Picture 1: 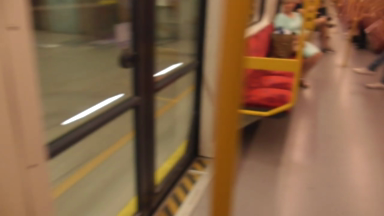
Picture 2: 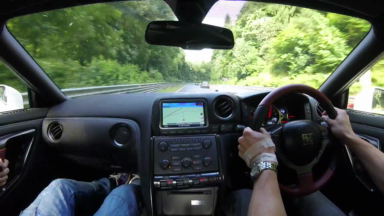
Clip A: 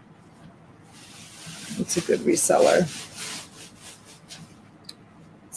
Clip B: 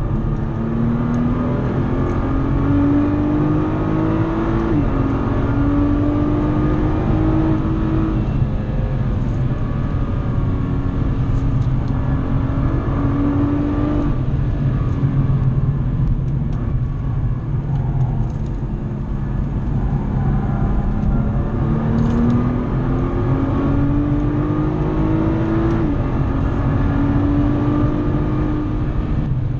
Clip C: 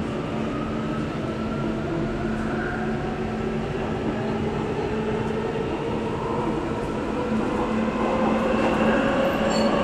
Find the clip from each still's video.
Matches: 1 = C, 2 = B